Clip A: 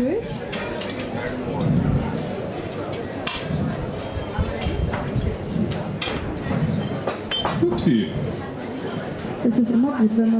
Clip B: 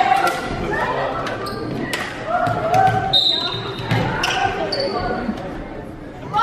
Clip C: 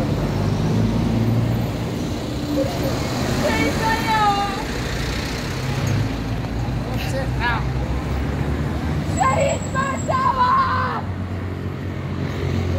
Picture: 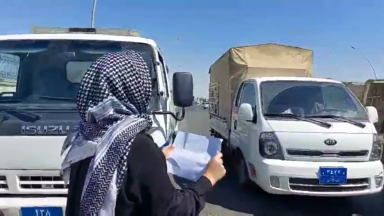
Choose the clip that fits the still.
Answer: C